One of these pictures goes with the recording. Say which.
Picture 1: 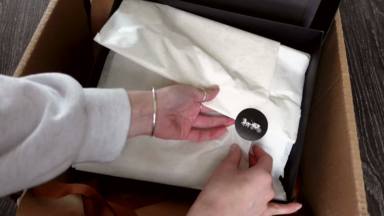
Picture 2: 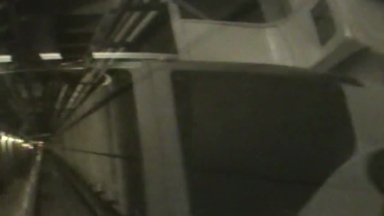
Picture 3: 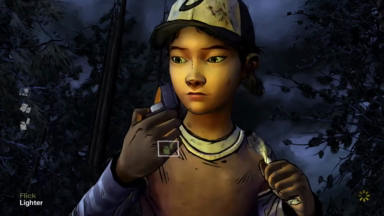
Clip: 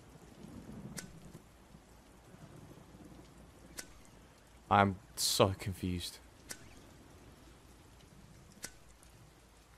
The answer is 3